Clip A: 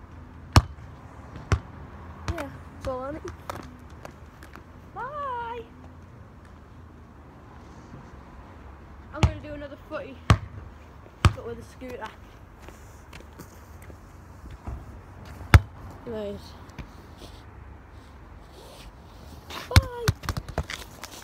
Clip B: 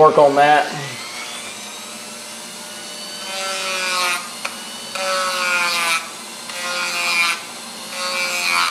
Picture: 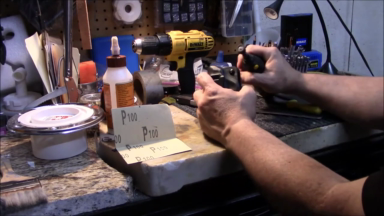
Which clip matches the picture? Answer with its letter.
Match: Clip B